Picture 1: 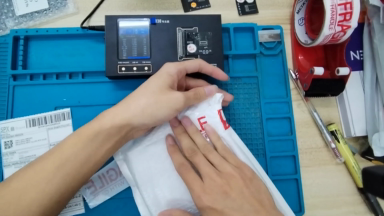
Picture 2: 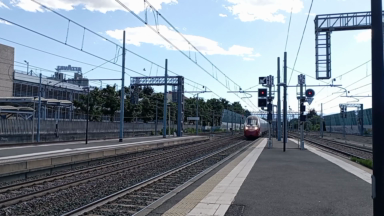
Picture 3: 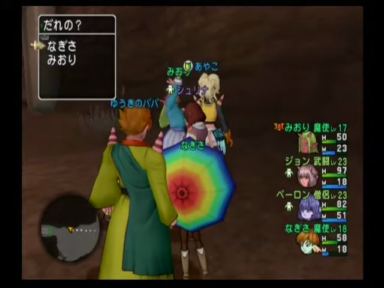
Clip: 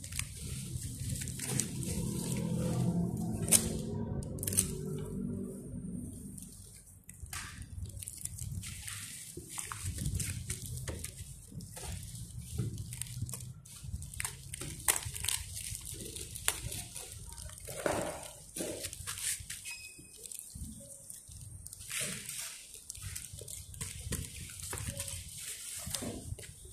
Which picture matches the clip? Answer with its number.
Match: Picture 1